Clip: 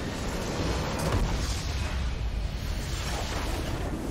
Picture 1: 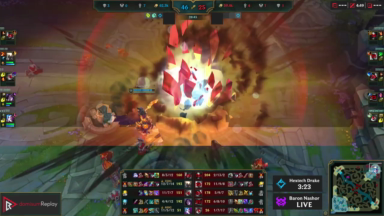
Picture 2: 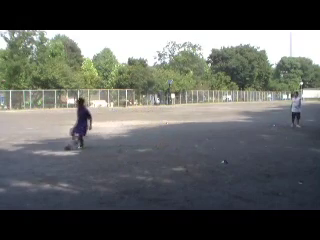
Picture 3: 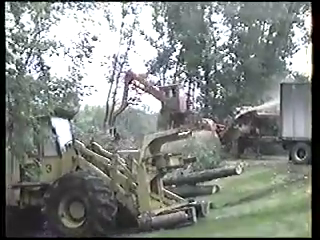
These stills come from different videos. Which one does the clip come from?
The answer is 1